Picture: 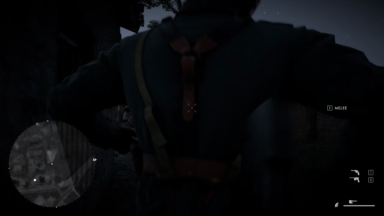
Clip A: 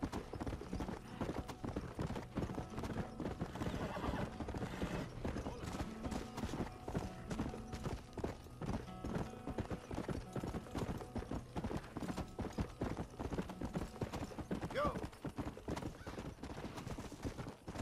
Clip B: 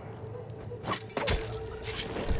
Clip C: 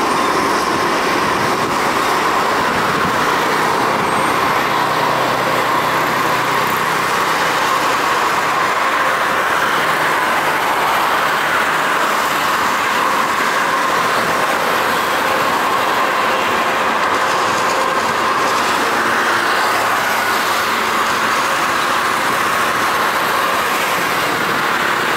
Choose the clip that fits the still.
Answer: B